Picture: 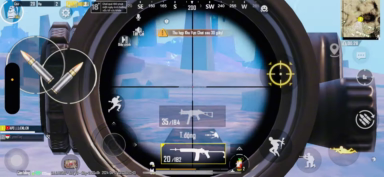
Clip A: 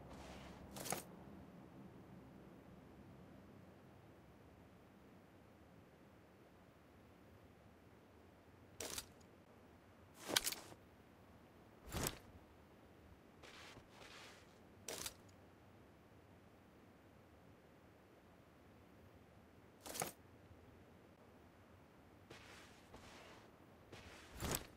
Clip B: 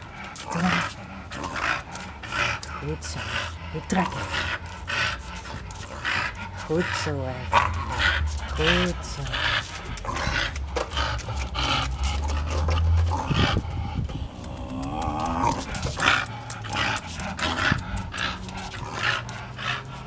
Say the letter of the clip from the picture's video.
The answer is A